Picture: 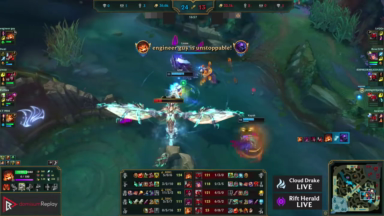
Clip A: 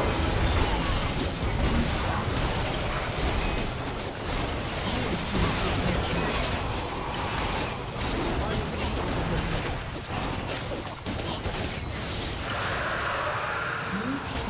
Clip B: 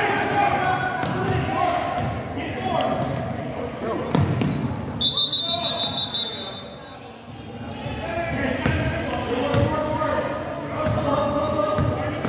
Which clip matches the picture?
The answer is A